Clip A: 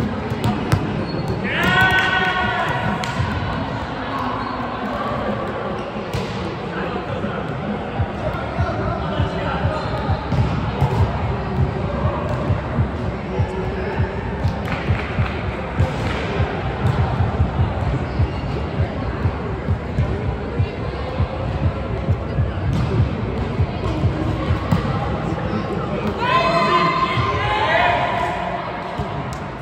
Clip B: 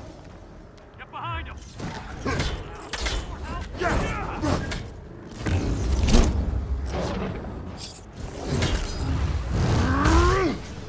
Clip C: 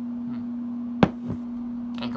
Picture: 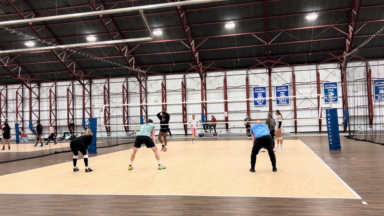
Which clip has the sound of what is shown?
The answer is A